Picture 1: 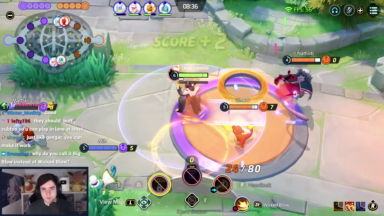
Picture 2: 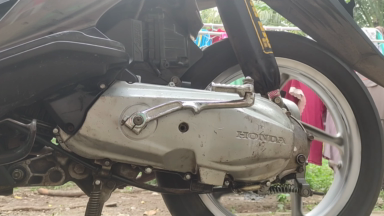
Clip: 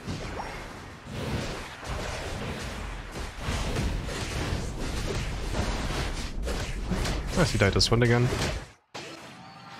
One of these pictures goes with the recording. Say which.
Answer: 1